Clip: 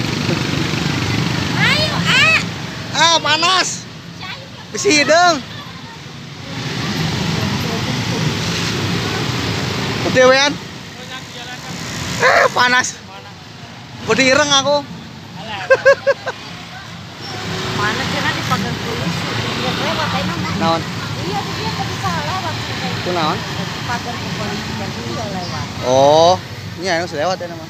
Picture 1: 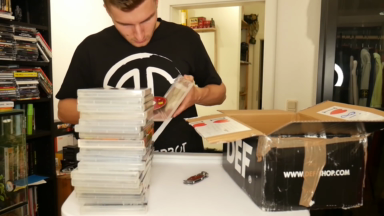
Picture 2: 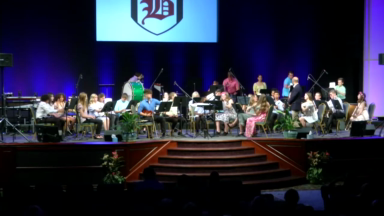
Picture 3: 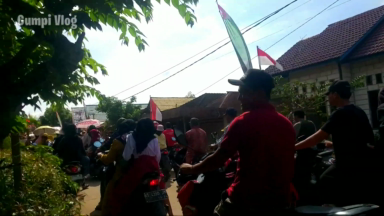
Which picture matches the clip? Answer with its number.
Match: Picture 3